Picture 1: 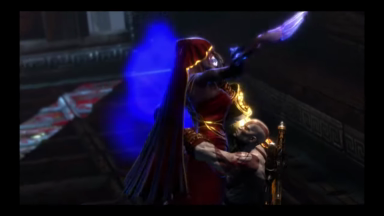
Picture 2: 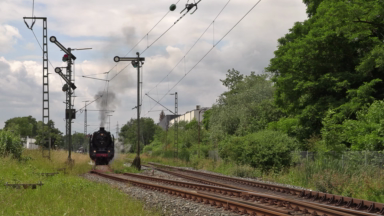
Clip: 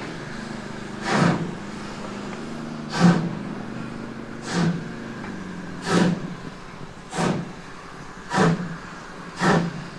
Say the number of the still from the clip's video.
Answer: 2